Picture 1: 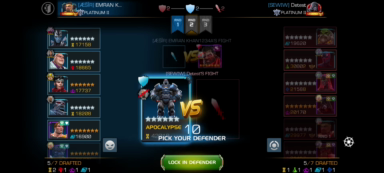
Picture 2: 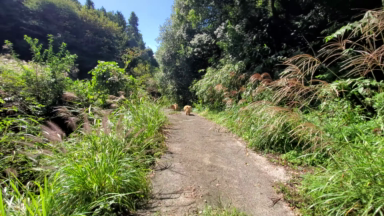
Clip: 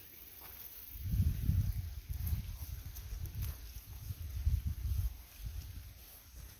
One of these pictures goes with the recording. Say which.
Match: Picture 2